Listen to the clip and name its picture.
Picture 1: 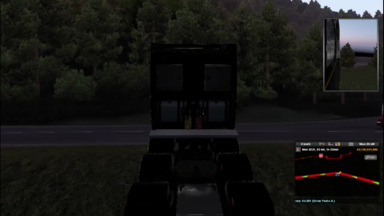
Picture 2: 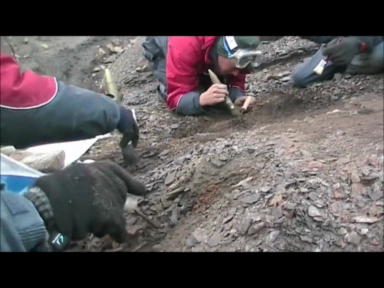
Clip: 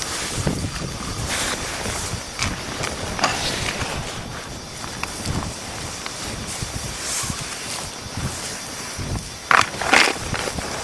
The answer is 2